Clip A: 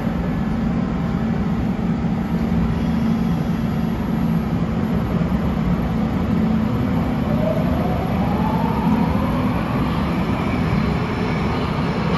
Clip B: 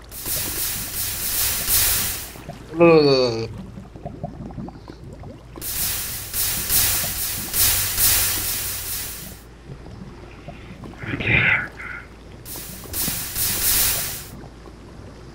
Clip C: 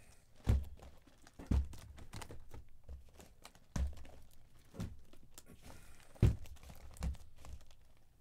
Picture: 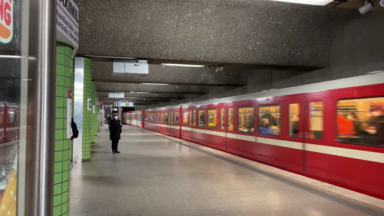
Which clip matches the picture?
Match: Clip A